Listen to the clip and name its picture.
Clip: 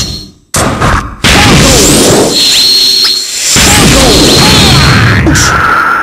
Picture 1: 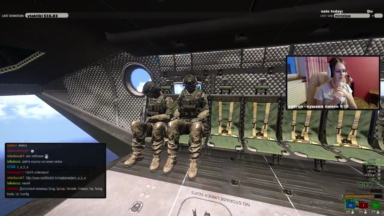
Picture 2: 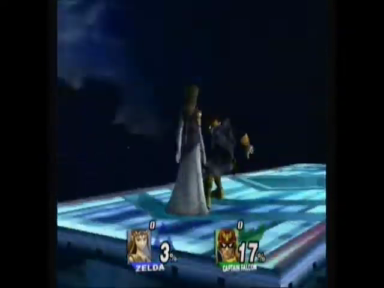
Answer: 2